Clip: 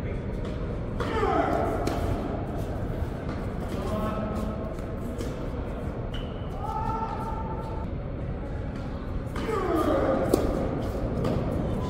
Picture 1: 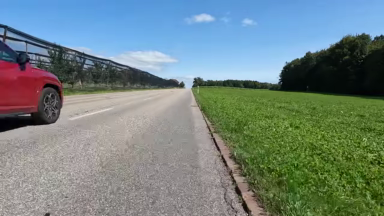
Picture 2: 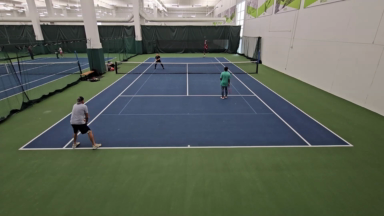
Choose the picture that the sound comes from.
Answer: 2